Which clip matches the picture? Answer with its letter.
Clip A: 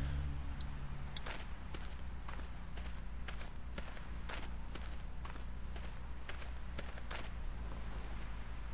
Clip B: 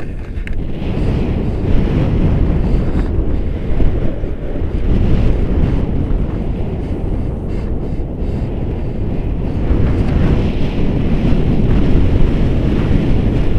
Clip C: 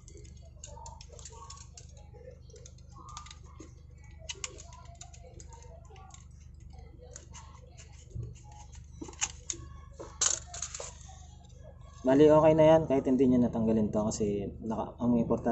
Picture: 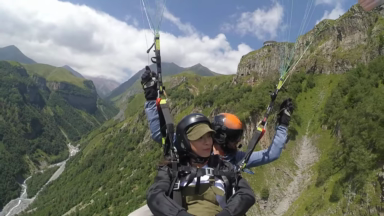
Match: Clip B